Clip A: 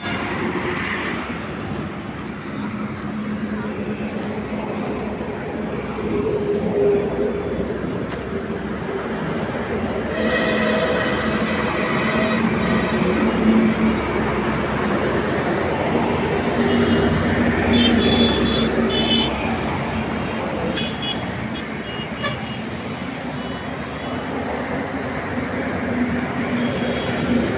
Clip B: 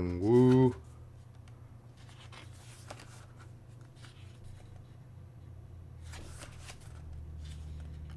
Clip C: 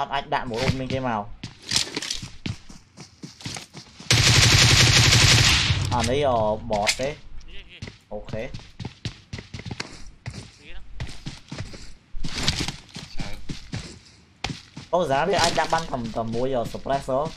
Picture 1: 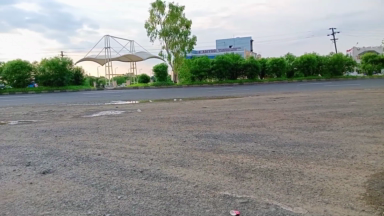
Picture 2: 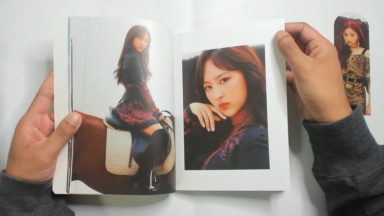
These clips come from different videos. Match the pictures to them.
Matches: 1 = A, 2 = B